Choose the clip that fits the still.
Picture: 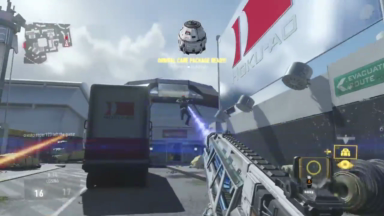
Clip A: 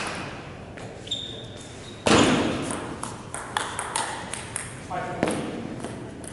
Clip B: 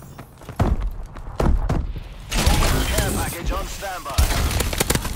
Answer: B